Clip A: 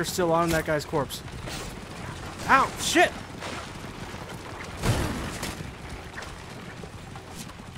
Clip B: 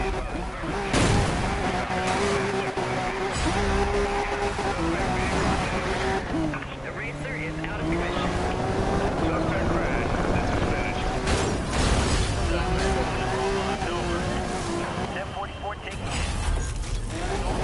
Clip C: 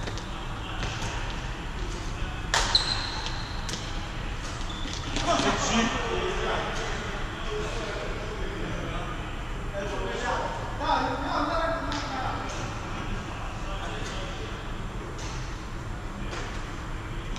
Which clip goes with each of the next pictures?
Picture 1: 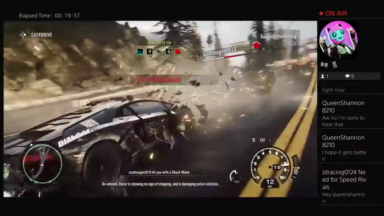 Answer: B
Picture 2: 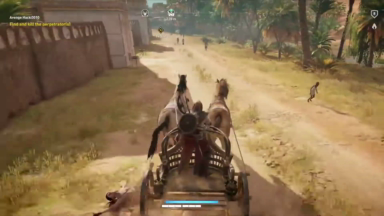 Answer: A